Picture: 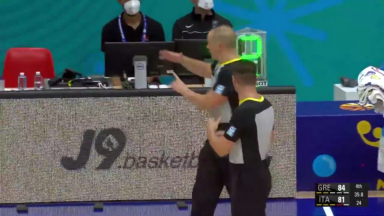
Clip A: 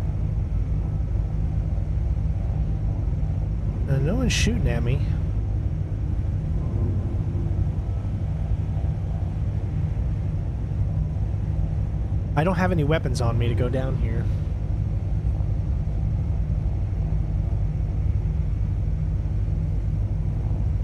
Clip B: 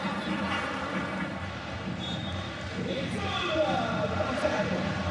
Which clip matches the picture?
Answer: B